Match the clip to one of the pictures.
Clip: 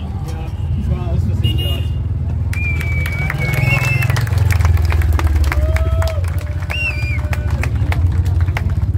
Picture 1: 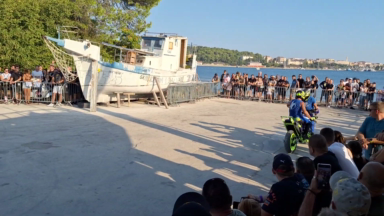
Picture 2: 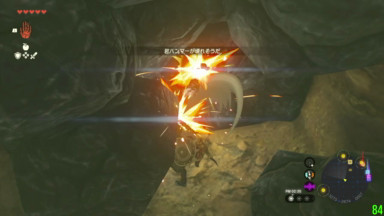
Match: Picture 1